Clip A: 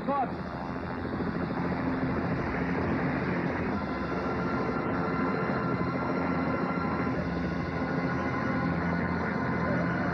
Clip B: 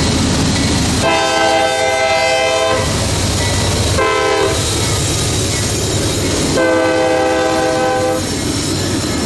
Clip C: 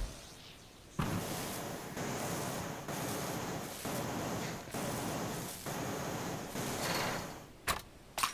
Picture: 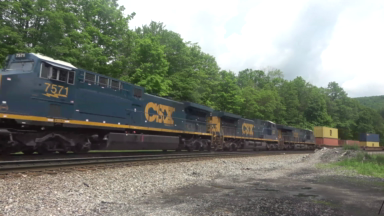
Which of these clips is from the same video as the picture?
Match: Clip B